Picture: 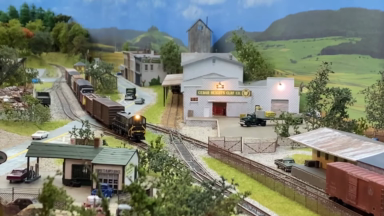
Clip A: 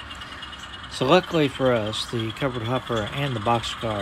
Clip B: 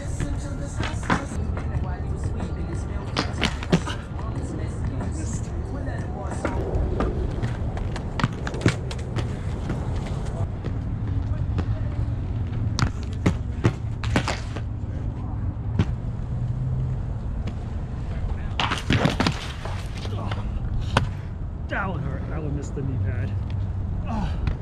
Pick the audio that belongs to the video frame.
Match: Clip A